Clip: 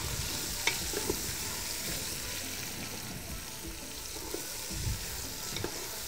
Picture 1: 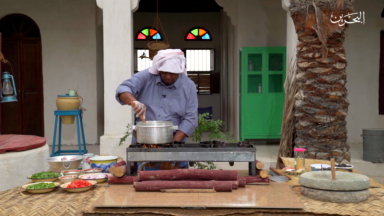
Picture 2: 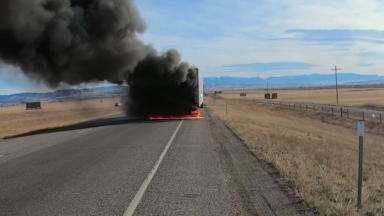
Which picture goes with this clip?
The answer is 1